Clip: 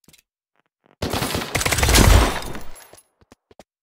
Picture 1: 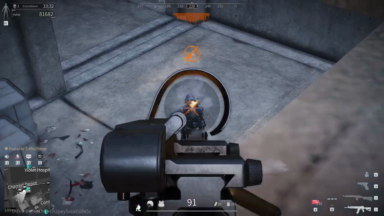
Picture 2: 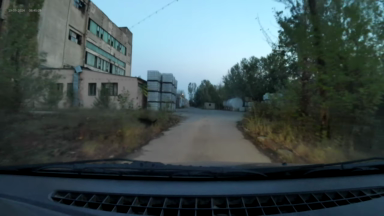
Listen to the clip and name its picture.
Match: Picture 1